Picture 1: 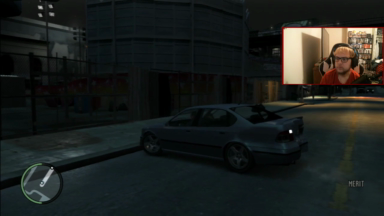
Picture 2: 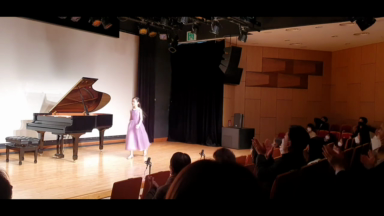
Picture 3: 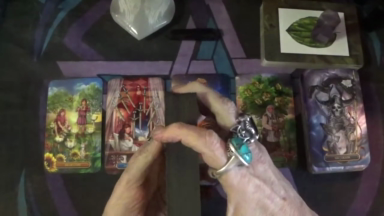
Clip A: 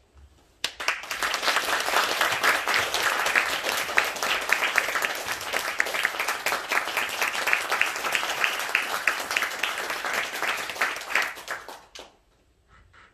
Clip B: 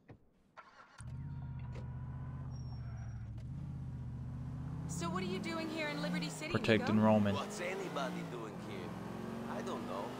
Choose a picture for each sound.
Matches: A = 2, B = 1